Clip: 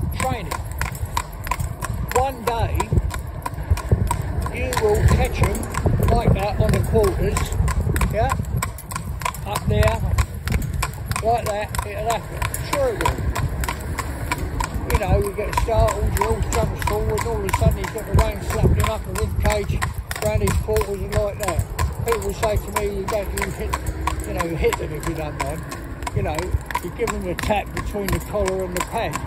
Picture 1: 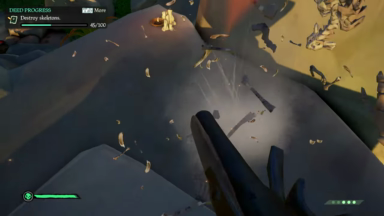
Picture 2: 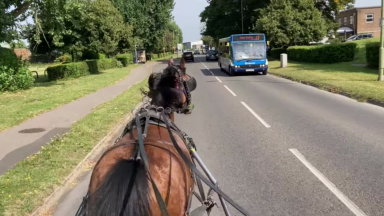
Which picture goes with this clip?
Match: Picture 2